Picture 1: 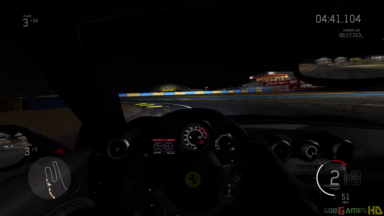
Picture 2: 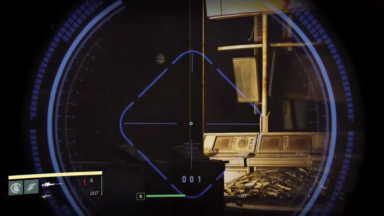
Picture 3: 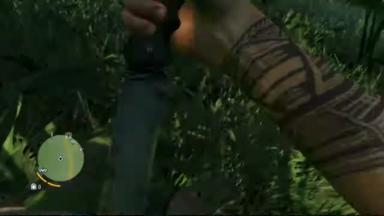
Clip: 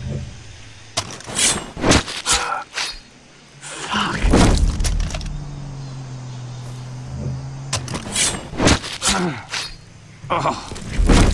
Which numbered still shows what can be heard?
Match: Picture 3